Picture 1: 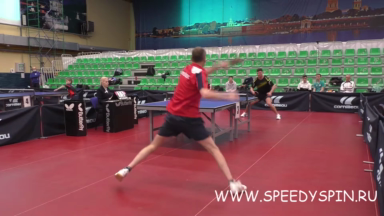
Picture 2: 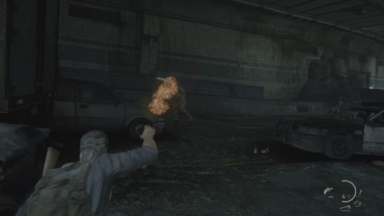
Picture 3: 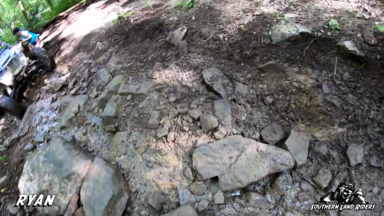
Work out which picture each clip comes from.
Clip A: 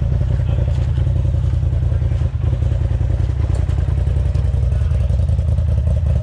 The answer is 3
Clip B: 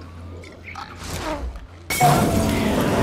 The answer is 2